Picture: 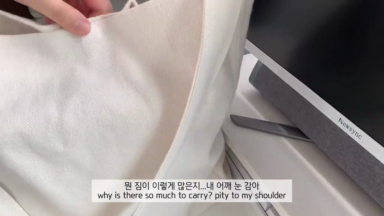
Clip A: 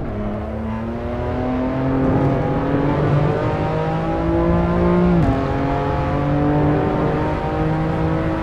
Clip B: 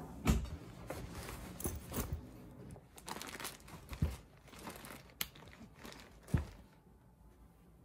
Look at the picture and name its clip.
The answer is B